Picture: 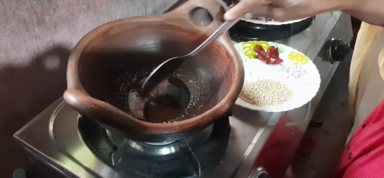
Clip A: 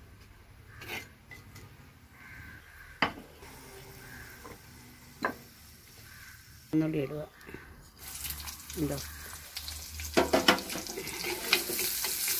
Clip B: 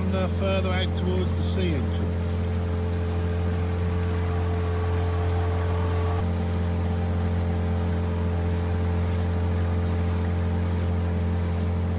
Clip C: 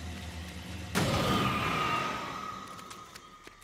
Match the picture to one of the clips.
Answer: A